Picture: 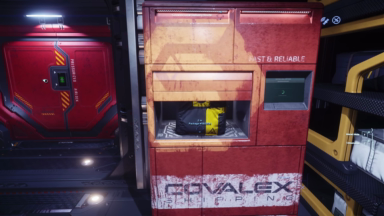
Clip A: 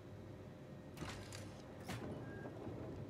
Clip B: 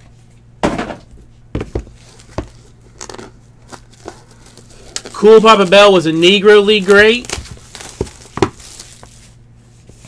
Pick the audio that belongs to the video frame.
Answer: A